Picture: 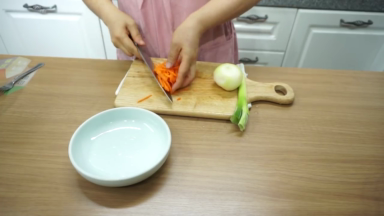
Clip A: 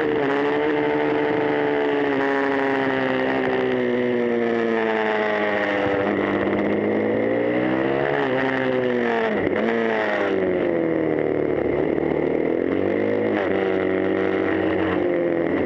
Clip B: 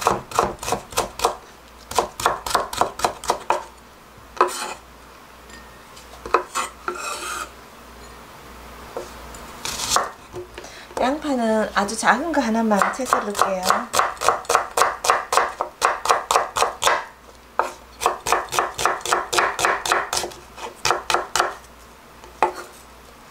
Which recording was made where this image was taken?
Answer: B